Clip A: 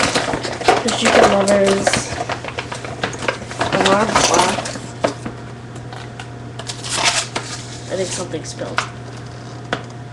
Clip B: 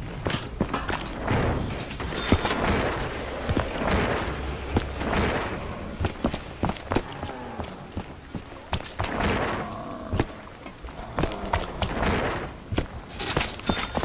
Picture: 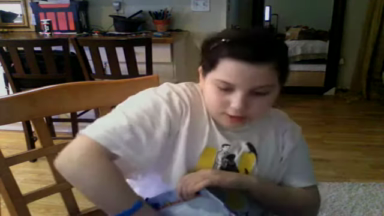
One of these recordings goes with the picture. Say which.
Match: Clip A